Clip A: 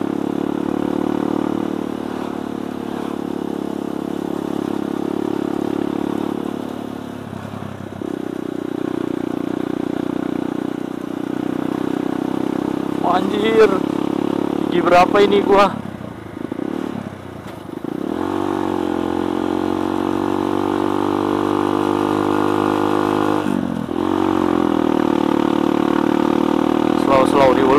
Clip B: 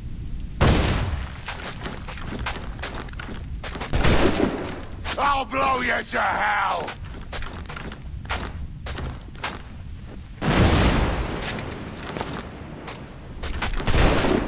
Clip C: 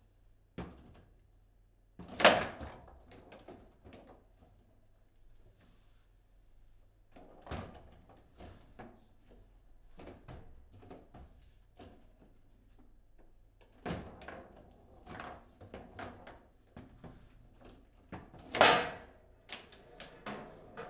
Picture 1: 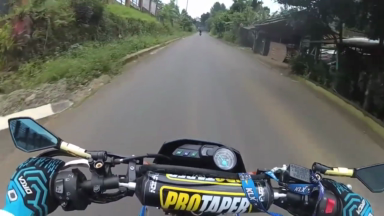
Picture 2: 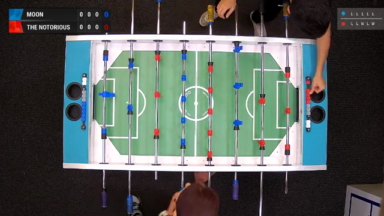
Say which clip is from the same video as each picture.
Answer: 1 A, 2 C